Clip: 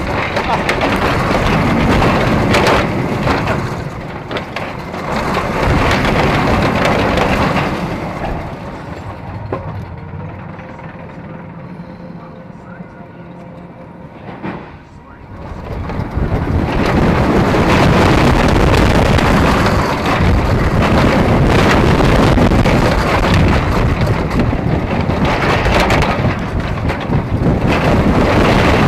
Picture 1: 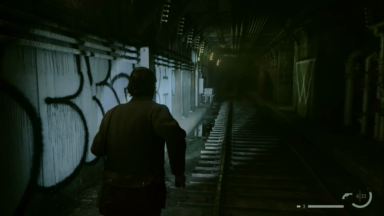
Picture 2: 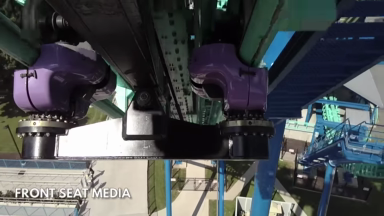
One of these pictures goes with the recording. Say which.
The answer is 2